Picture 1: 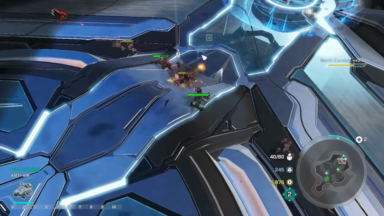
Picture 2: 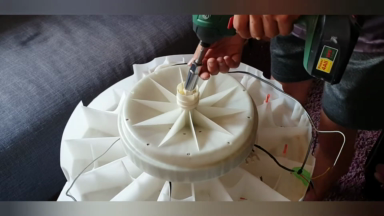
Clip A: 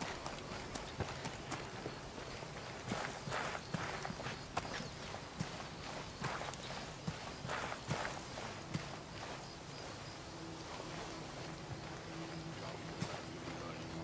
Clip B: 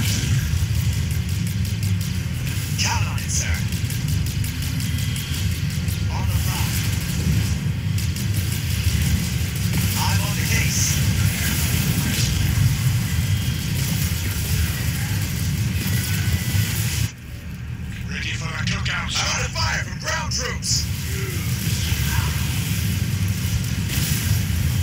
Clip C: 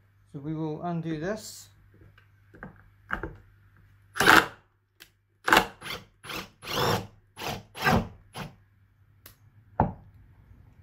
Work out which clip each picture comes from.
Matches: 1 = B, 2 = C